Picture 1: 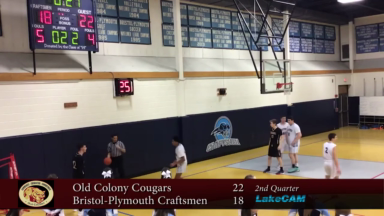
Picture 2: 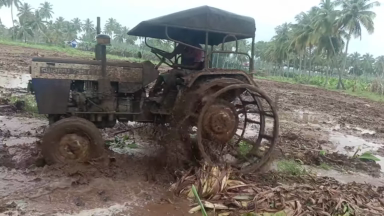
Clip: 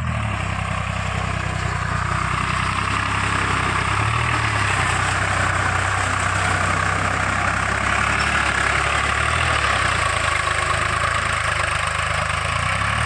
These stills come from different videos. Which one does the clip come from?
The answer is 2